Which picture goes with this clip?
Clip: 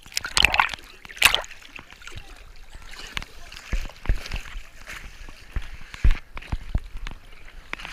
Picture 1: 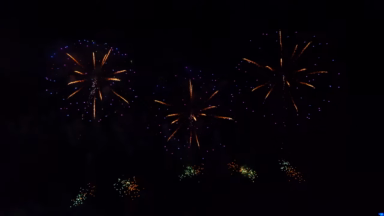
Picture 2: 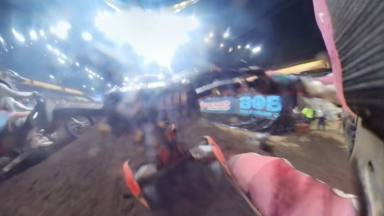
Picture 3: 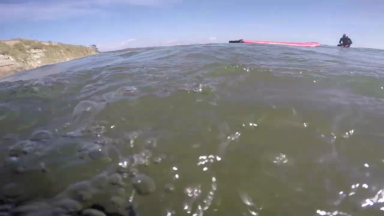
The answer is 3